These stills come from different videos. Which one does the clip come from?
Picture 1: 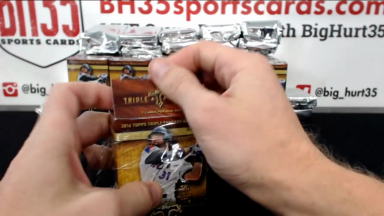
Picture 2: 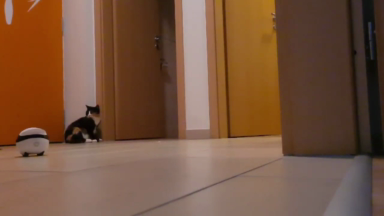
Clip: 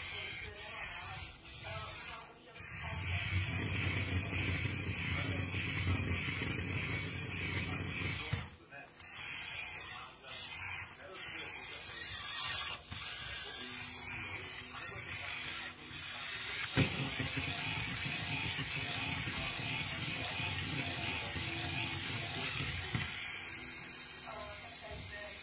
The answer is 2